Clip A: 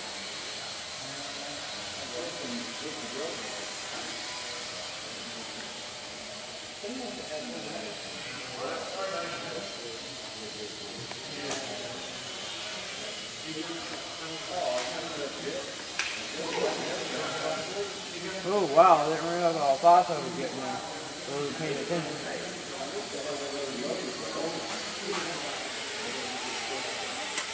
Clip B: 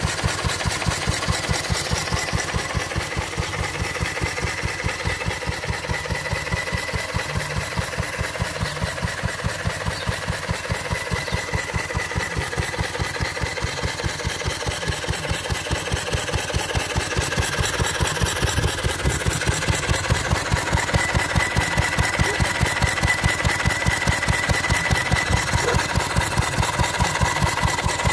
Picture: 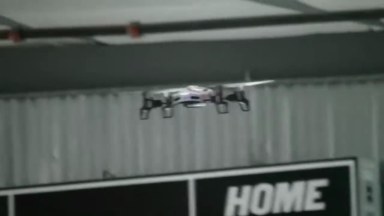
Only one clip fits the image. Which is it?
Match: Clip A